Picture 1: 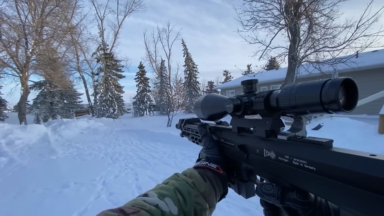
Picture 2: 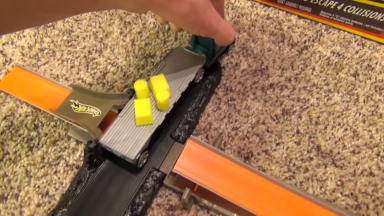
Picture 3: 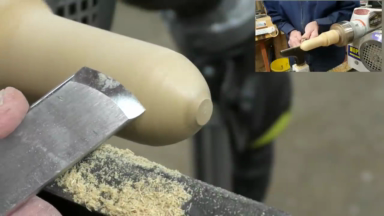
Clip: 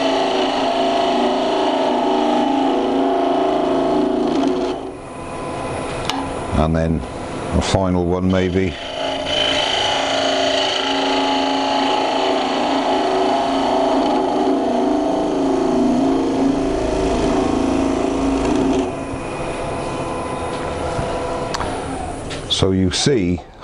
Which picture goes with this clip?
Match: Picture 3